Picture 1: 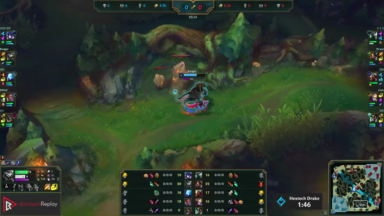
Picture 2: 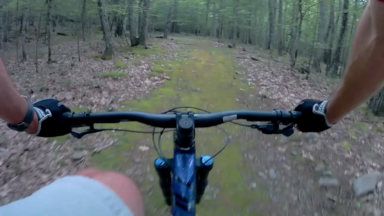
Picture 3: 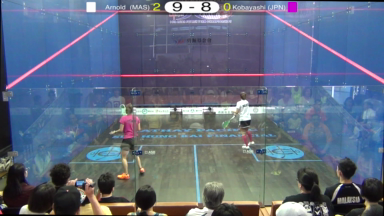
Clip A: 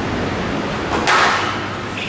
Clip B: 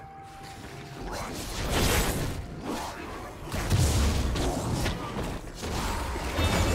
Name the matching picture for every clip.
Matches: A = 3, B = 1